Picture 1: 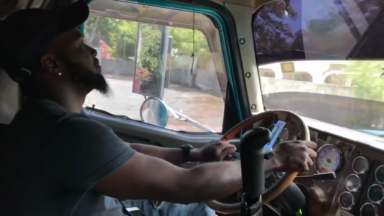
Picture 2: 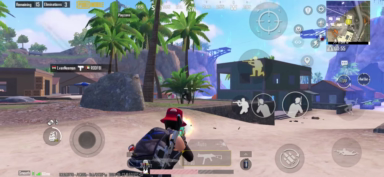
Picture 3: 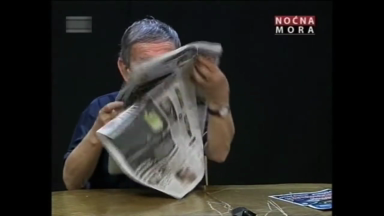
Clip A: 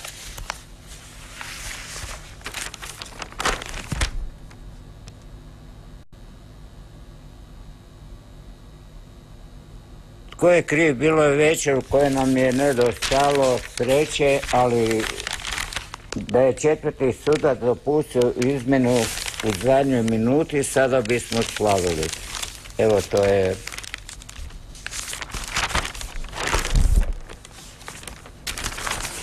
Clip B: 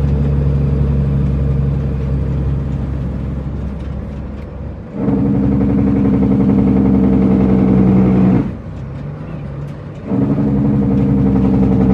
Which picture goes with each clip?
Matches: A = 3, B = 1